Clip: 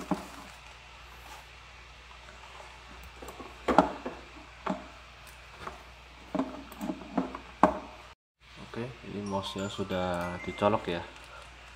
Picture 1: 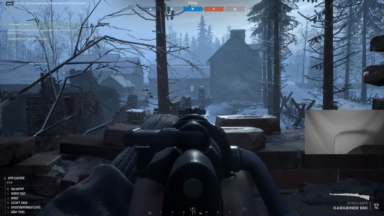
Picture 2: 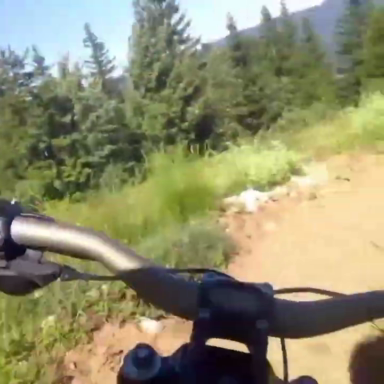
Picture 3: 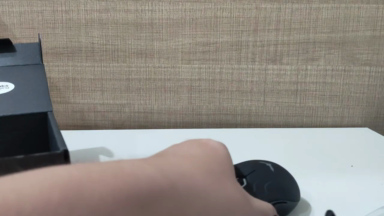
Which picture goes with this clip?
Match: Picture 3